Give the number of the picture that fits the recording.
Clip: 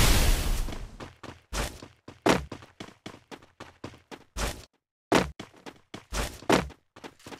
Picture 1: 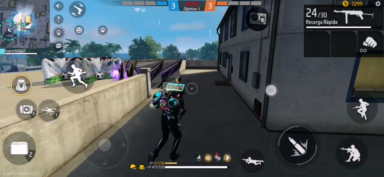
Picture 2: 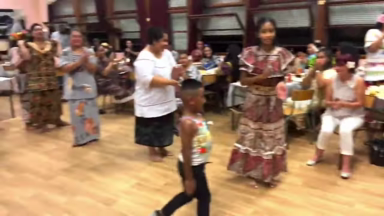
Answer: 1